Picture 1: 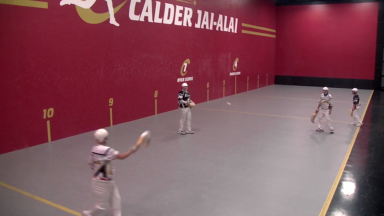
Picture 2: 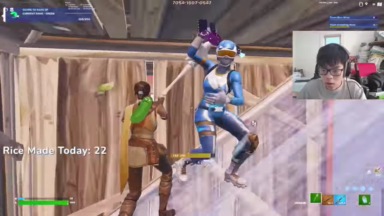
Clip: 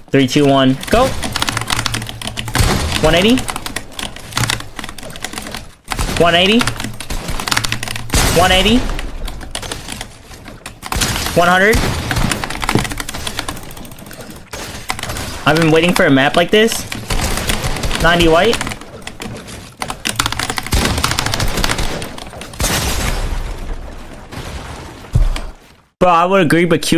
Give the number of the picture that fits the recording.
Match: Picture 2